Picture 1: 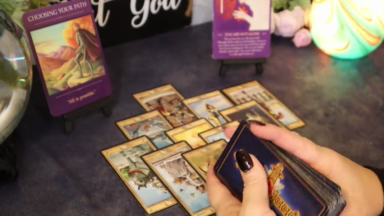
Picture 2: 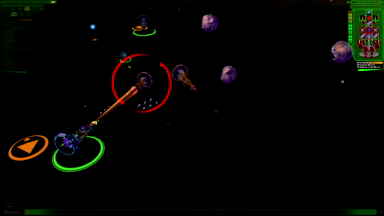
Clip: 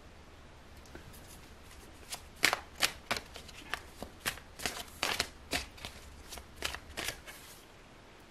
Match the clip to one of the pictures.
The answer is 1